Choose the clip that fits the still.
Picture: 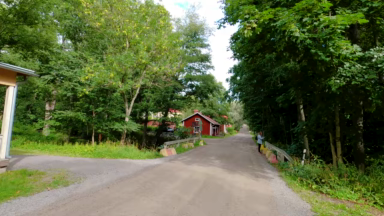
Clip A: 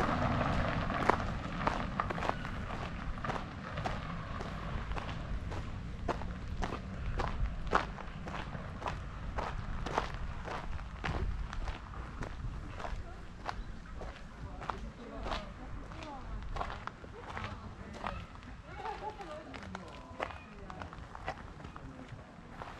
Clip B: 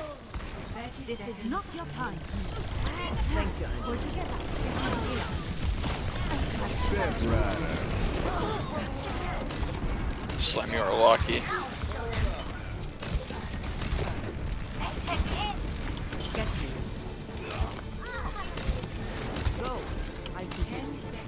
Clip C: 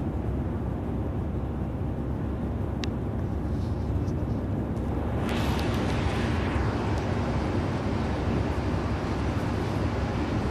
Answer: A